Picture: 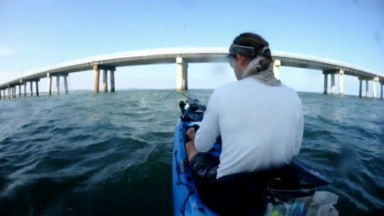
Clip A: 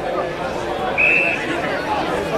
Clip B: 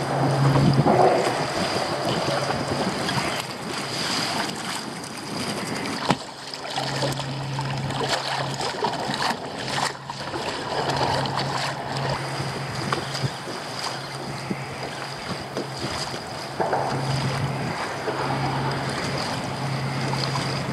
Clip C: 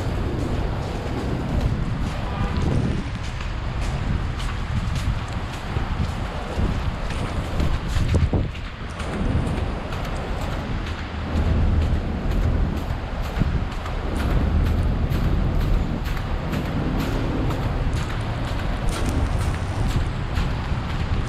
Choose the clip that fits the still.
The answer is B